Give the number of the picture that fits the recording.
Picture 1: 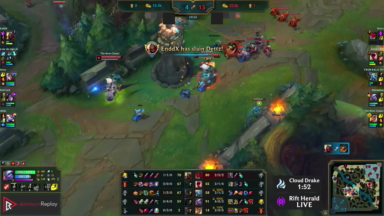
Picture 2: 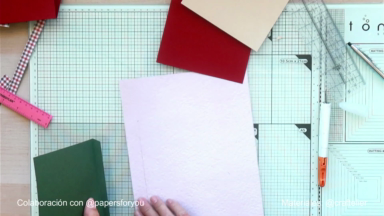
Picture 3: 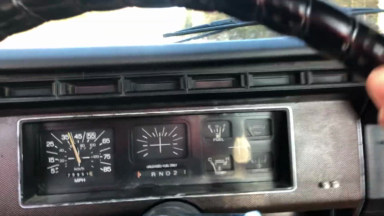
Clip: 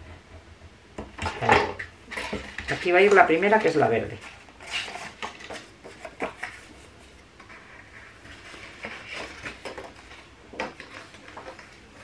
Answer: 2